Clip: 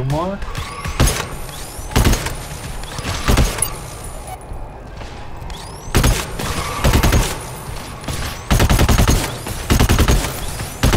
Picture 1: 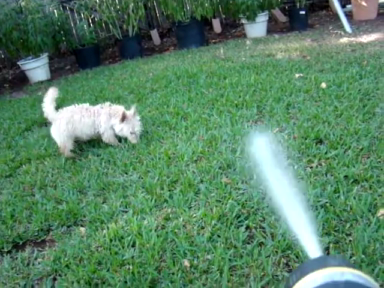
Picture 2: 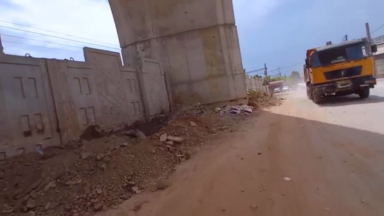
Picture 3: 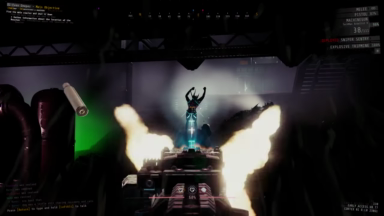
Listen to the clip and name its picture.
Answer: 3